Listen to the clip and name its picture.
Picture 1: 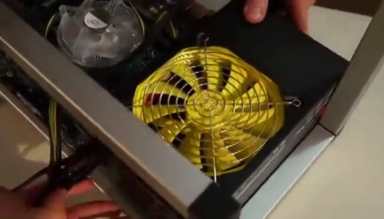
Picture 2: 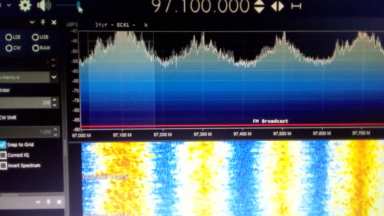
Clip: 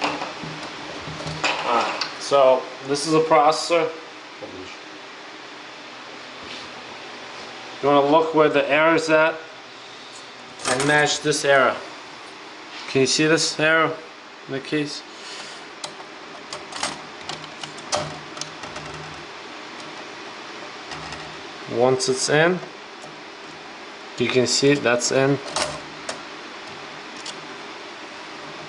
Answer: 1